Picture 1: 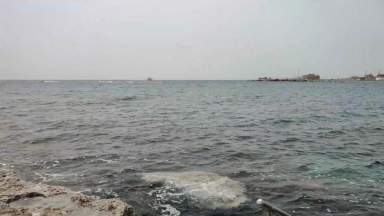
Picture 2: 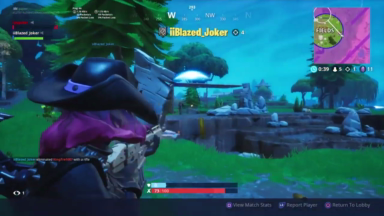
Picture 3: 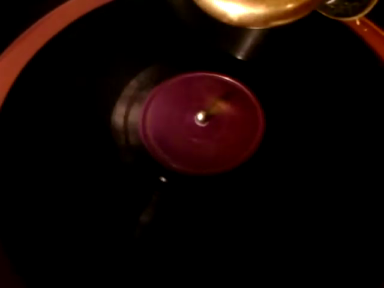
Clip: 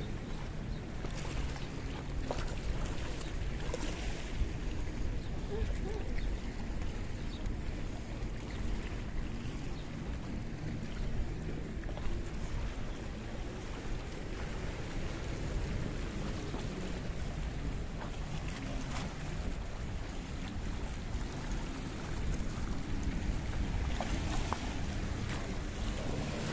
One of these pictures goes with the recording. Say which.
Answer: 1